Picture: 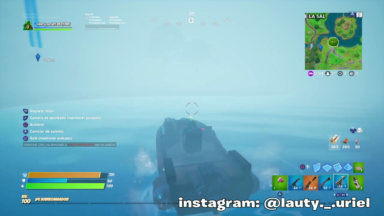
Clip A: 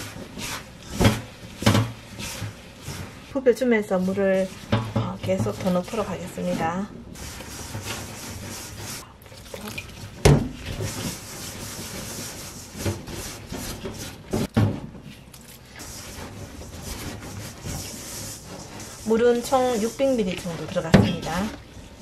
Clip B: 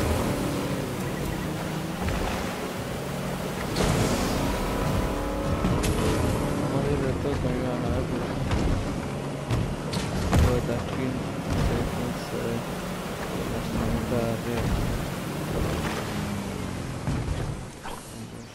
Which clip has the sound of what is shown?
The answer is B